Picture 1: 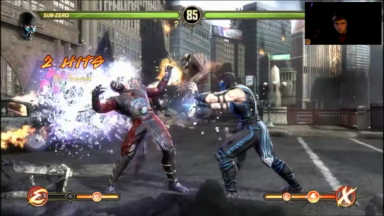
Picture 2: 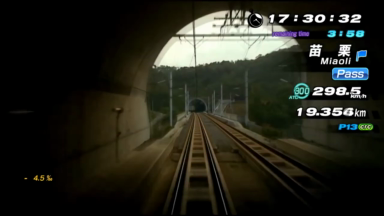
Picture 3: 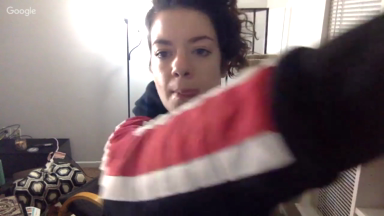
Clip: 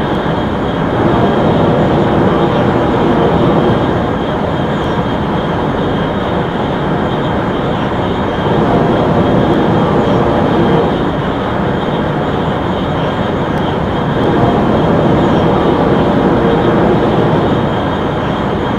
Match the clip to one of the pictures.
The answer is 2